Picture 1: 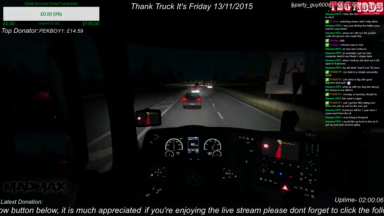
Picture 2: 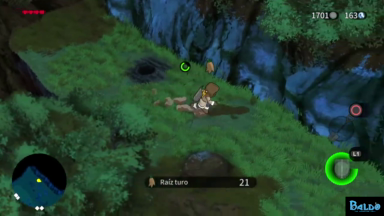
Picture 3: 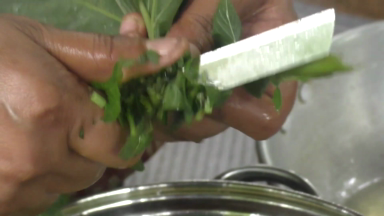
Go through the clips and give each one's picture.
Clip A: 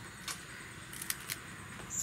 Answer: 3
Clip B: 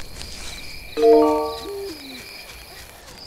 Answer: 2